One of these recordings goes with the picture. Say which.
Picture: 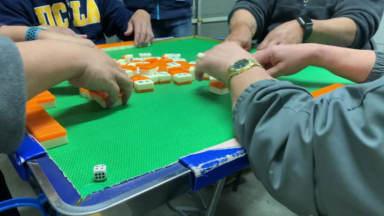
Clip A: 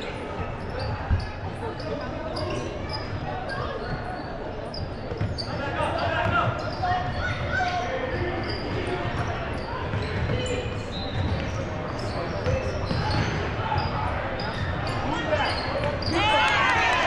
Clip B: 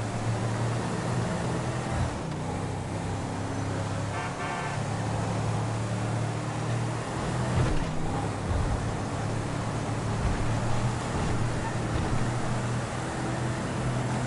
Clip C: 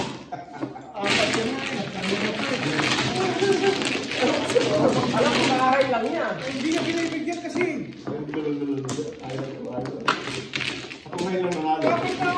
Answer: C